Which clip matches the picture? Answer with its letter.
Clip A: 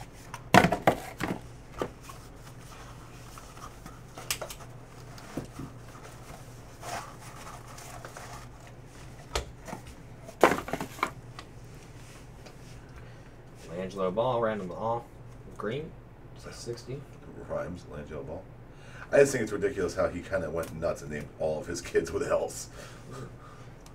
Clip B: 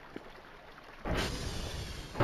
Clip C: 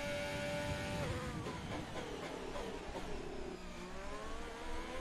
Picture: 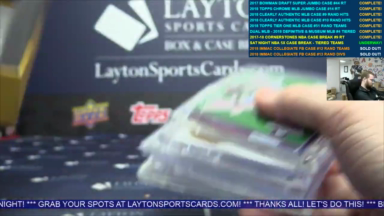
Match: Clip A